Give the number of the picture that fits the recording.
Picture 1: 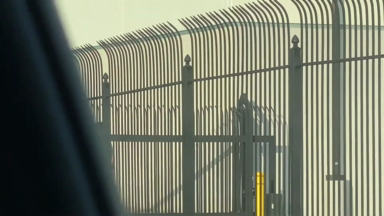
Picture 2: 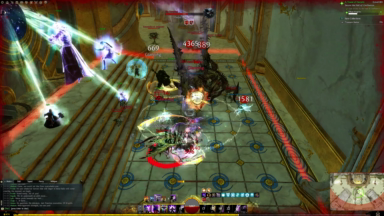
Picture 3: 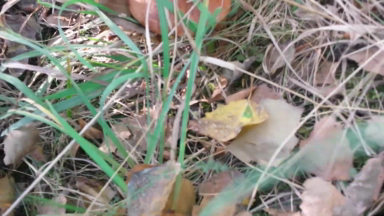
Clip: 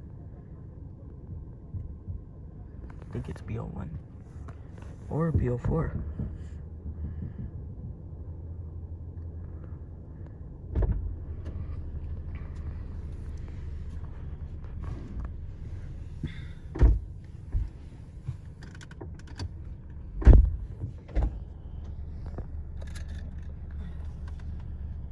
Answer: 1